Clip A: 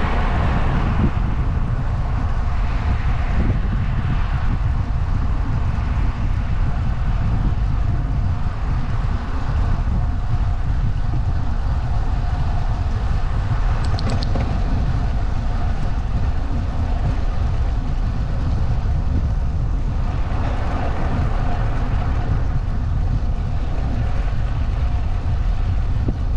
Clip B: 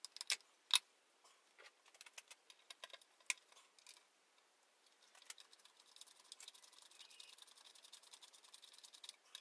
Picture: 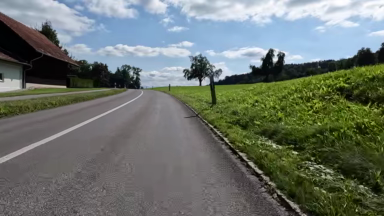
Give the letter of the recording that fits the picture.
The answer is A